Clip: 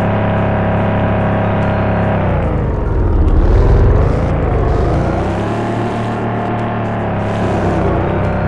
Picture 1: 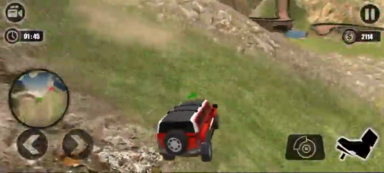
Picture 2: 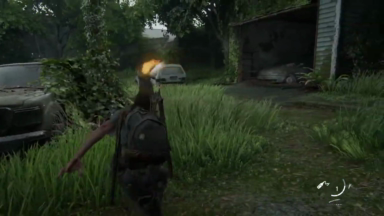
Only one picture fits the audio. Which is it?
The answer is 1